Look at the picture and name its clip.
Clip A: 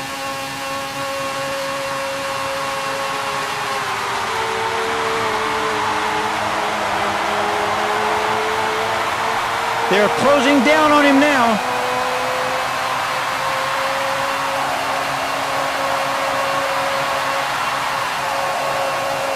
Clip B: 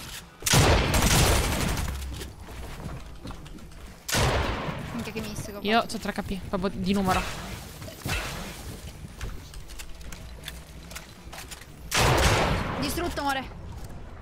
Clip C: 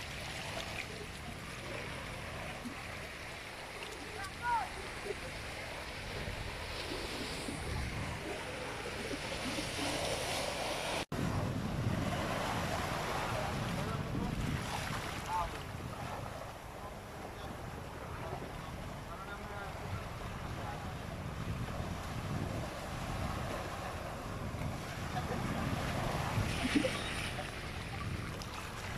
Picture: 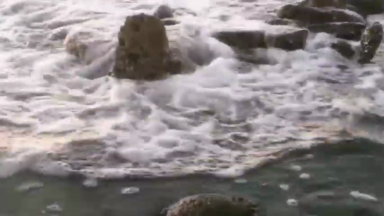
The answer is C